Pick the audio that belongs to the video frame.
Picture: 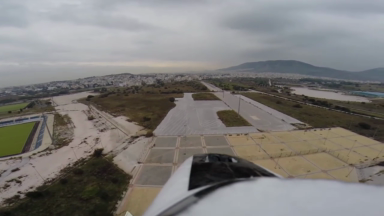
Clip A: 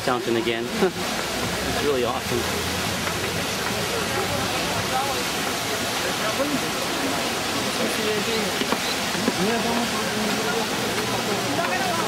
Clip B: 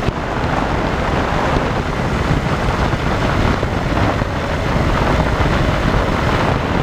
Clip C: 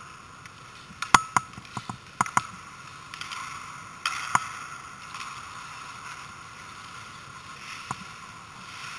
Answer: B